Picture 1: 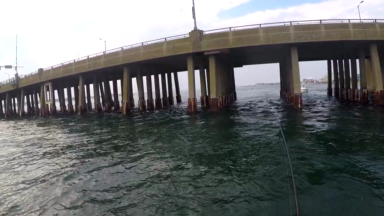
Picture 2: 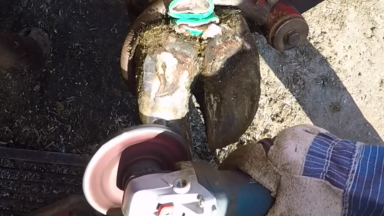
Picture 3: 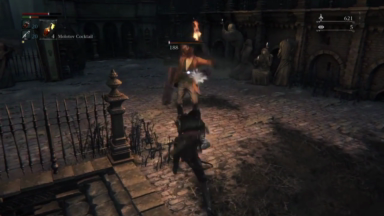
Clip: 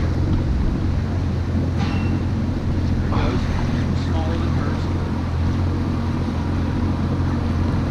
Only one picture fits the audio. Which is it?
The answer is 1